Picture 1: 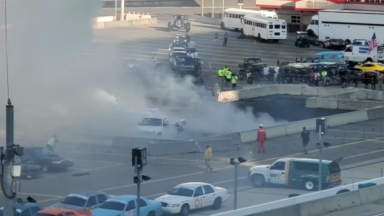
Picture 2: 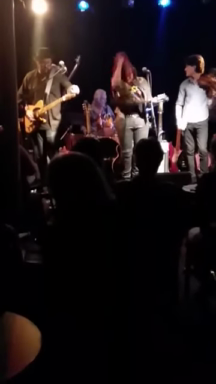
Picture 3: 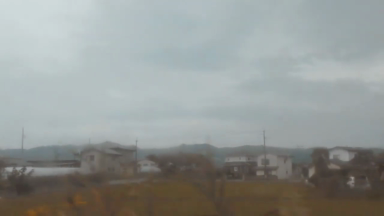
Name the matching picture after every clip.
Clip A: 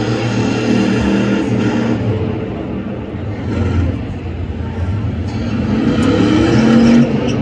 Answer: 1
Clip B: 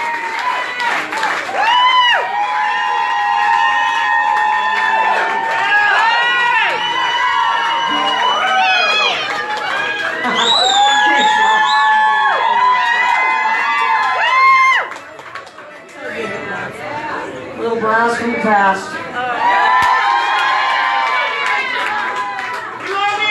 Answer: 2